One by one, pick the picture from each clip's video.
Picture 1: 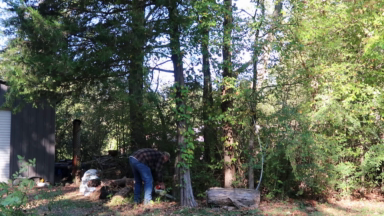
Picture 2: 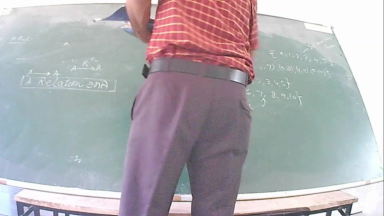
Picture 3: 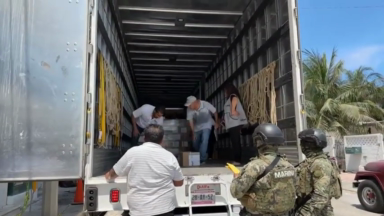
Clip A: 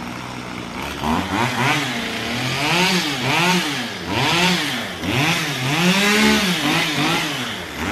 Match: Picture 1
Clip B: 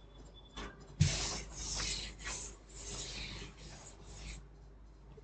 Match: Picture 2